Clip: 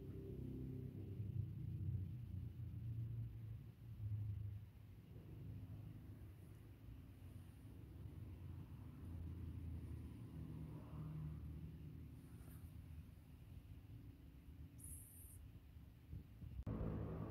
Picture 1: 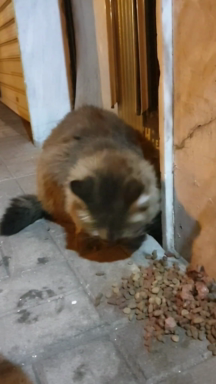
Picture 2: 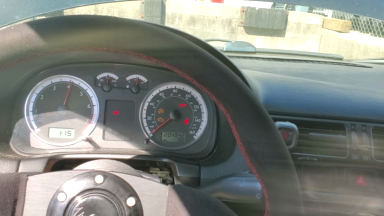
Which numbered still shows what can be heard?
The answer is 1